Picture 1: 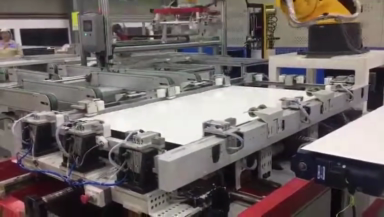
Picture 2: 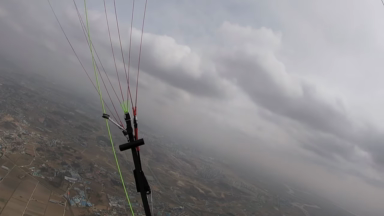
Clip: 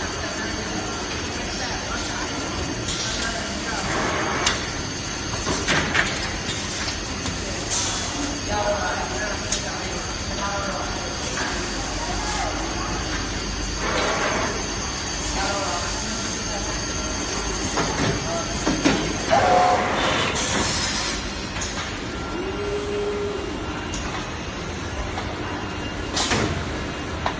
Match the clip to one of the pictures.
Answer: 1